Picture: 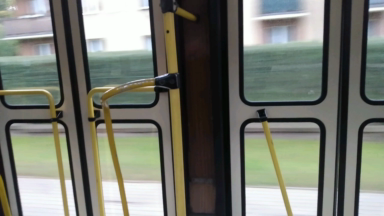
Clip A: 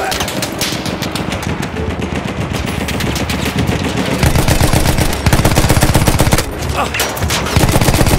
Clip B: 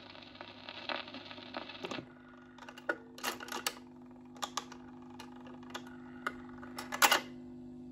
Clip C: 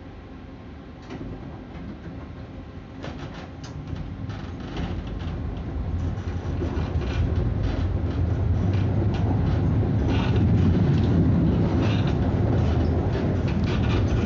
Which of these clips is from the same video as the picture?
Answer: C